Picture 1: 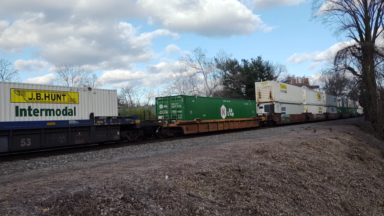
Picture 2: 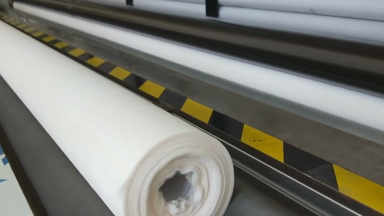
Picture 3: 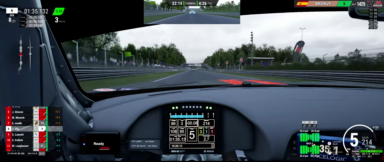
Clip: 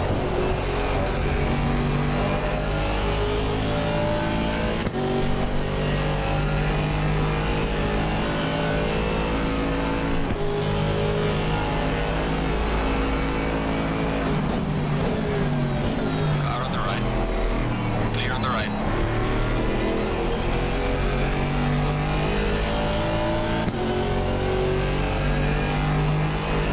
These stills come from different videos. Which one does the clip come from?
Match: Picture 3